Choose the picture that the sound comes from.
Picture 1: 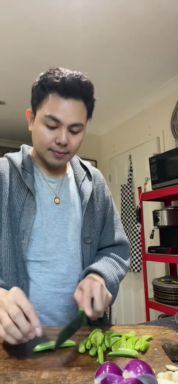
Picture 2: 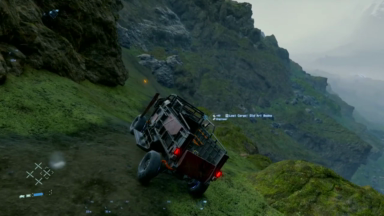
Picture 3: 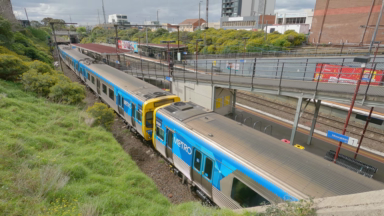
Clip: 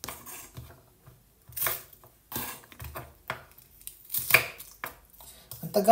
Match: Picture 1